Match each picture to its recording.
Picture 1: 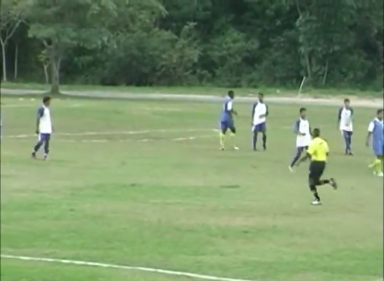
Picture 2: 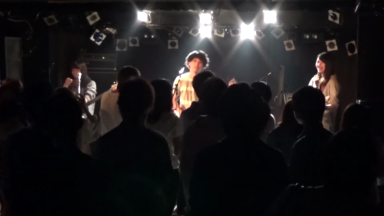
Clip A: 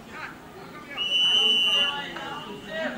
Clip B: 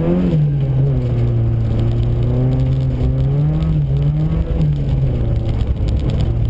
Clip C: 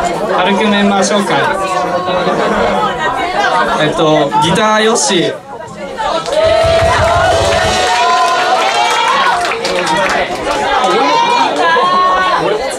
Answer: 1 A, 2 C